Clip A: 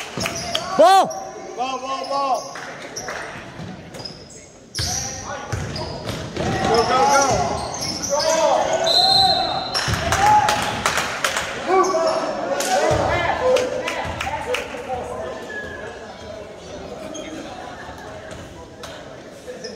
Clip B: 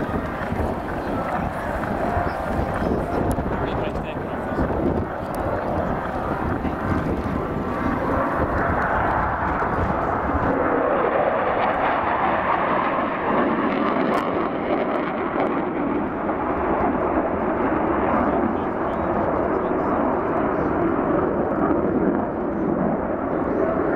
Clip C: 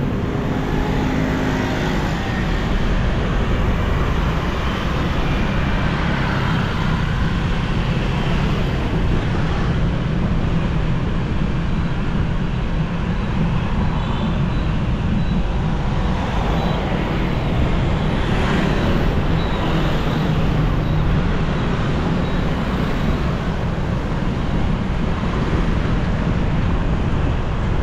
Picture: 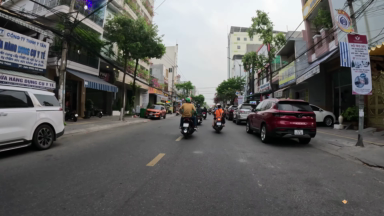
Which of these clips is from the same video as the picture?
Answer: C